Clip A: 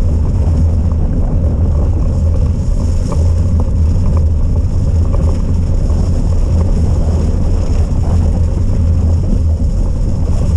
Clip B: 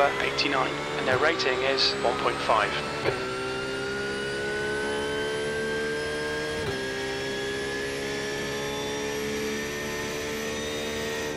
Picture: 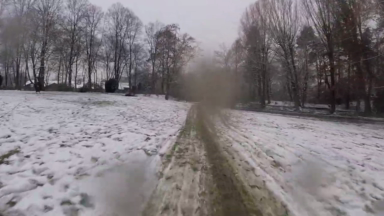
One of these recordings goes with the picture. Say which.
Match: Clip A